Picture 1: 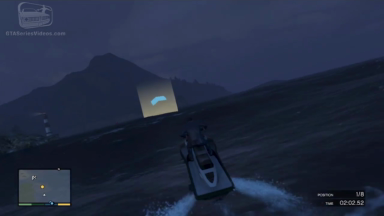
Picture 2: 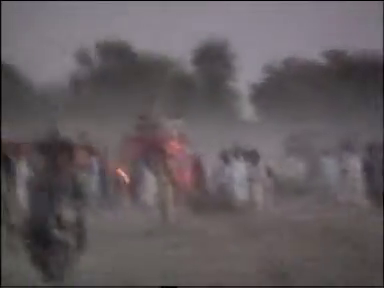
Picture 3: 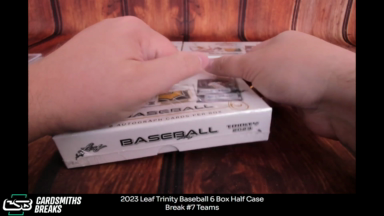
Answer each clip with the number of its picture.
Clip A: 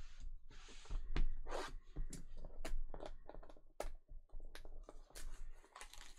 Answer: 3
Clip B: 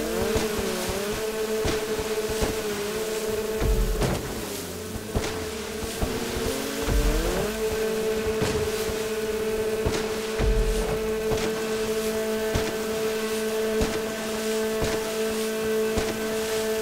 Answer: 1